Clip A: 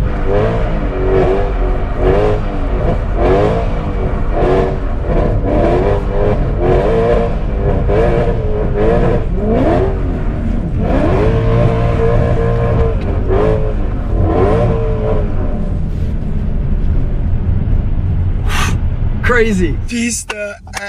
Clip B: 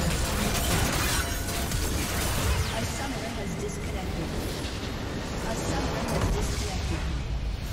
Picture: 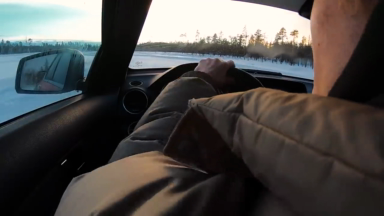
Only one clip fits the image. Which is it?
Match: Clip A